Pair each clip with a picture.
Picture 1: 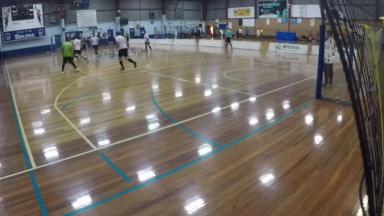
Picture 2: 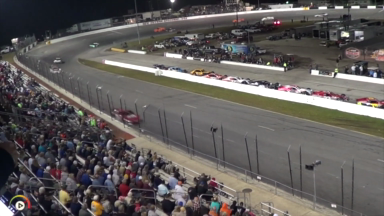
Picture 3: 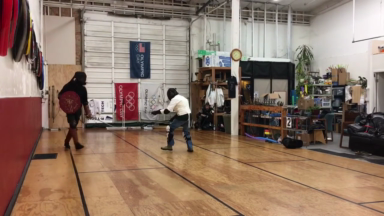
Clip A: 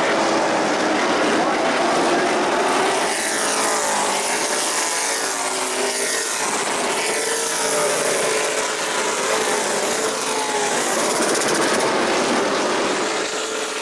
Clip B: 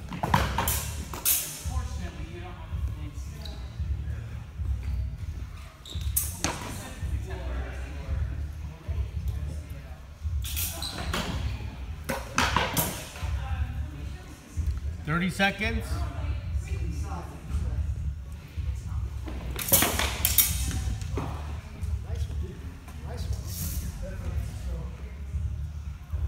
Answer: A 2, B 3